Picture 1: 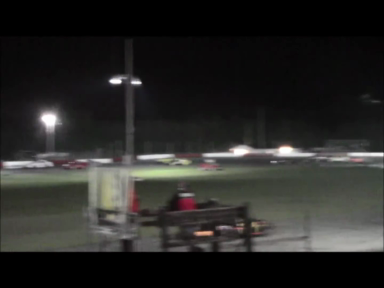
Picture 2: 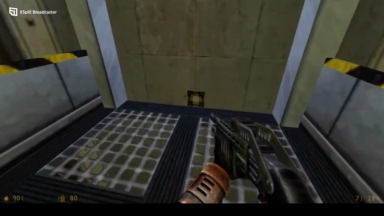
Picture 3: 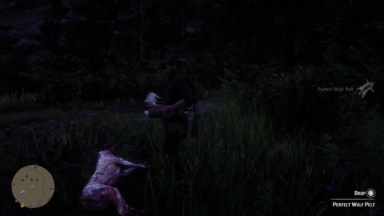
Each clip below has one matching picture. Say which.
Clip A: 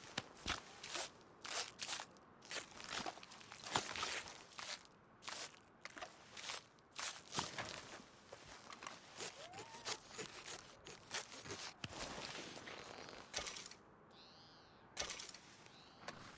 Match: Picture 3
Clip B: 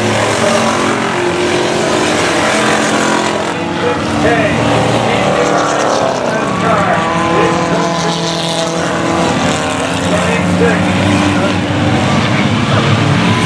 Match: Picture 1